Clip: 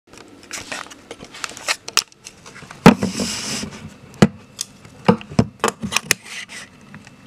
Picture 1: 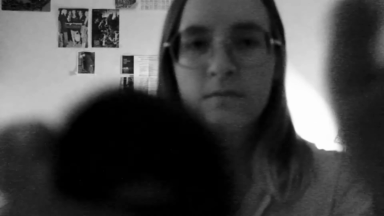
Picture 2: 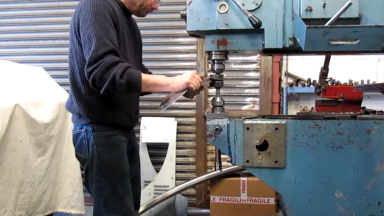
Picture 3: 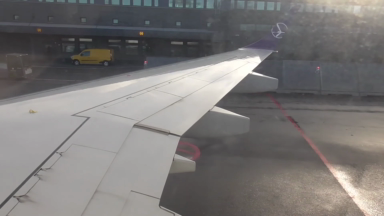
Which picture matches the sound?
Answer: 1